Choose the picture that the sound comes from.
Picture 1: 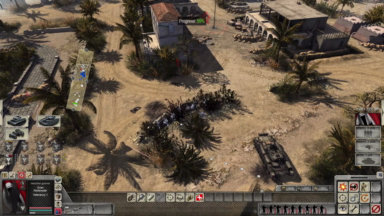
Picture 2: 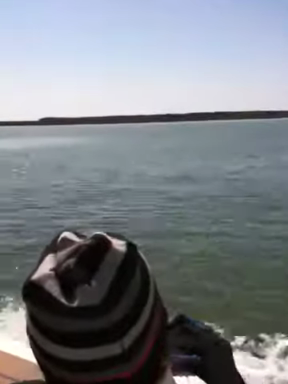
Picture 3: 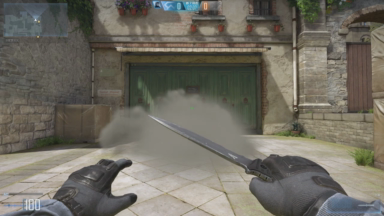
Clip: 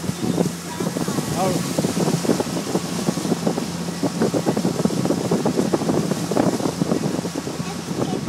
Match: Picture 2